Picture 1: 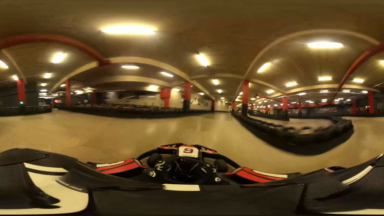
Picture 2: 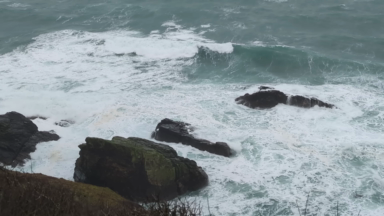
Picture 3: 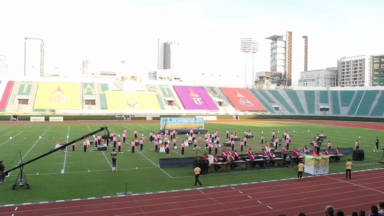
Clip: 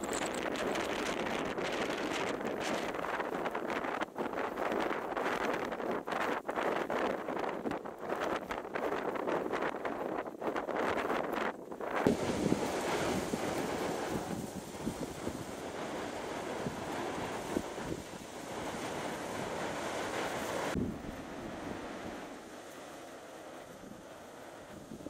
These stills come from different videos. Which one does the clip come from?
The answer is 2